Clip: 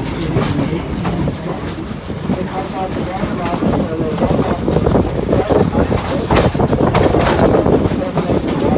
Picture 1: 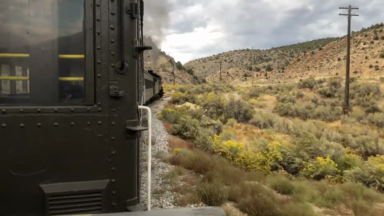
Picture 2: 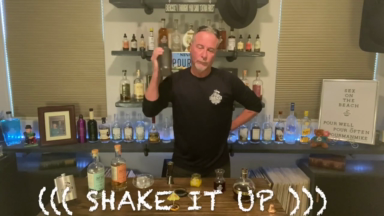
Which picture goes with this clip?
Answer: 1